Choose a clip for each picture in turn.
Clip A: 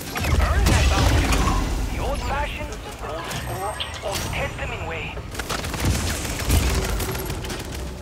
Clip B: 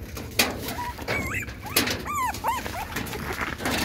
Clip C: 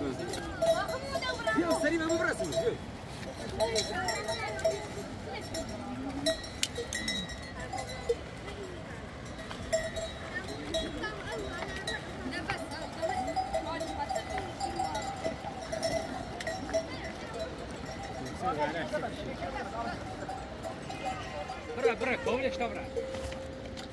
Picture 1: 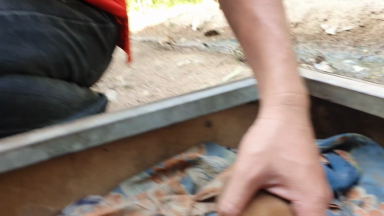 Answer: B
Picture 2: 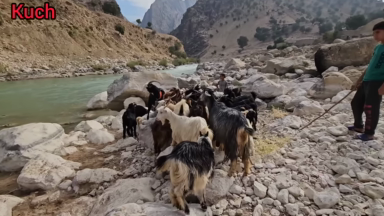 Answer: C